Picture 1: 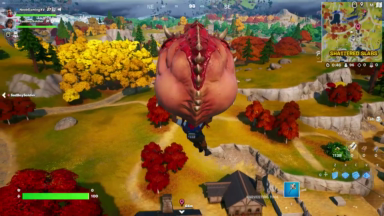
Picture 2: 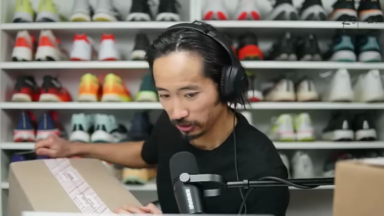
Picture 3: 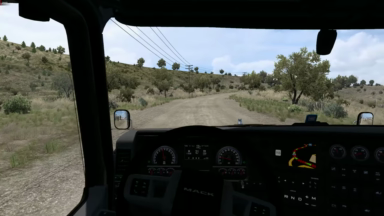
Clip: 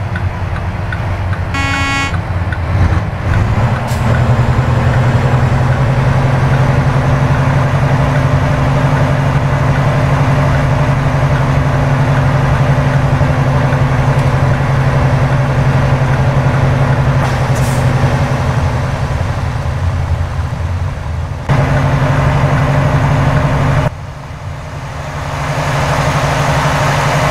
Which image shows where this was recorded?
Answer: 3